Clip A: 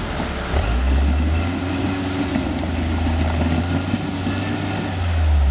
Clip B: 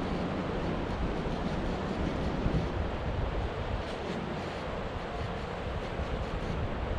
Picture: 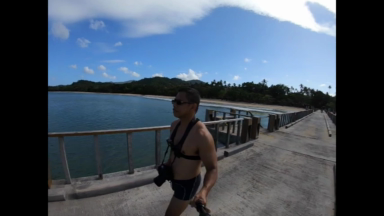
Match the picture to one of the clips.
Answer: B